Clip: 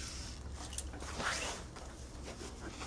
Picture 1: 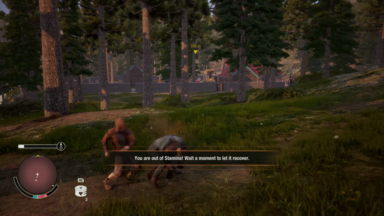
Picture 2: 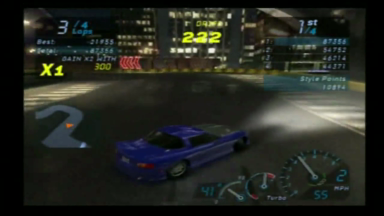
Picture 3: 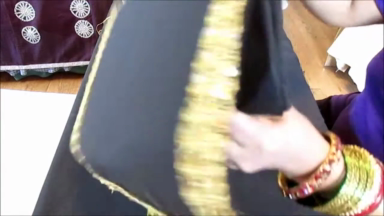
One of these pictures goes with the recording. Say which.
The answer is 3